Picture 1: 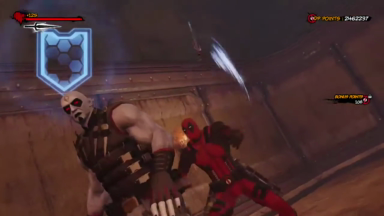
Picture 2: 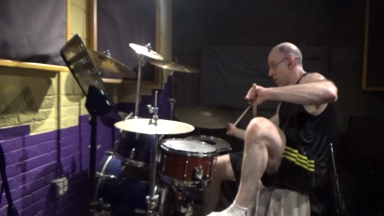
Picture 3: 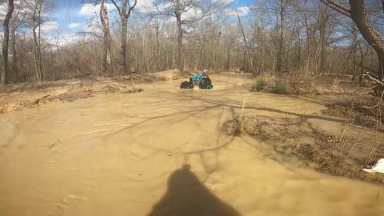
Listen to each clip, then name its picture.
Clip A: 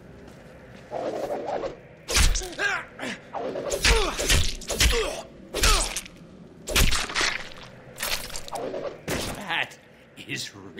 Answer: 1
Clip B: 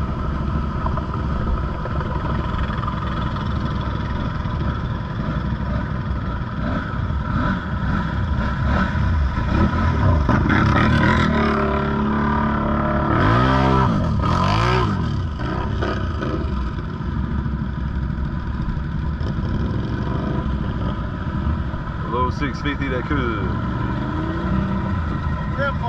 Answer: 3